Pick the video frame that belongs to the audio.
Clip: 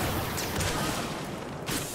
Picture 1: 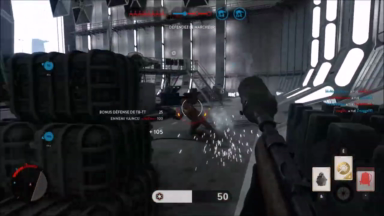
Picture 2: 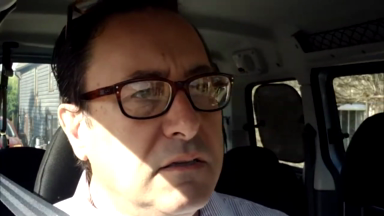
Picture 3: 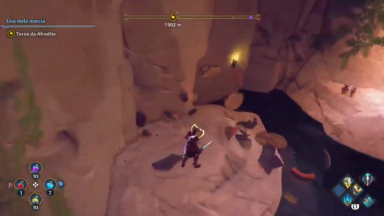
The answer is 1